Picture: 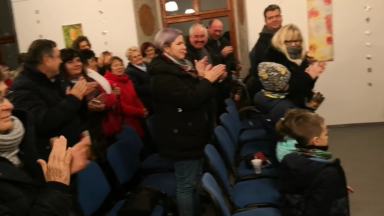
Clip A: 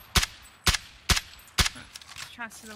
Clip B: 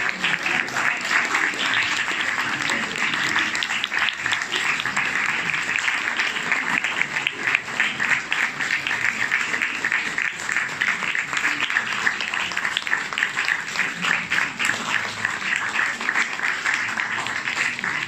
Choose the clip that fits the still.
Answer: B